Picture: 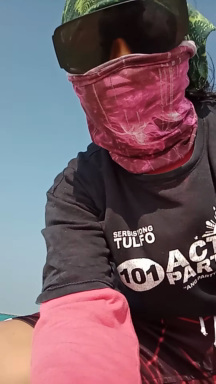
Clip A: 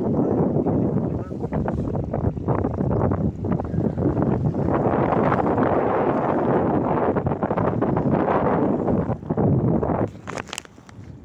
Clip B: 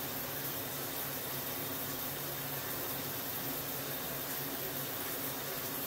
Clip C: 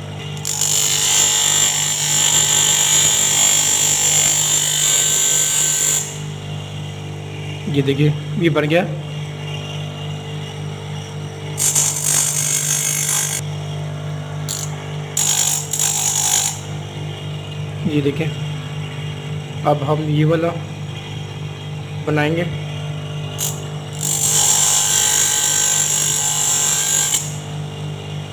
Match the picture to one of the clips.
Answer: A